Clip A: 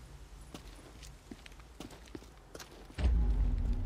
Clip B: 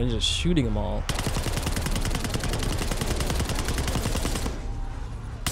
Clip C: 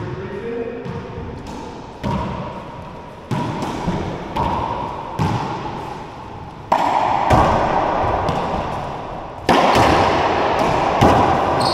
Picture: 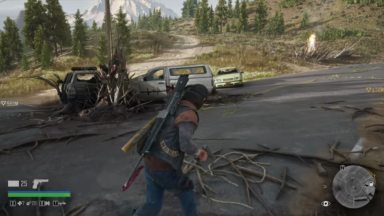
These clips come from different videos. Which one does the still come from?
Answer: A